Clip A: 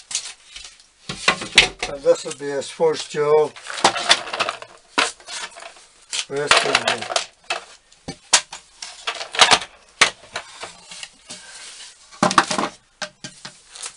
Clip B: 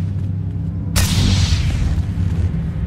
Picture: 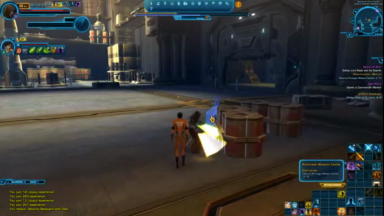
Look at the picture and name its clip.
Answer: B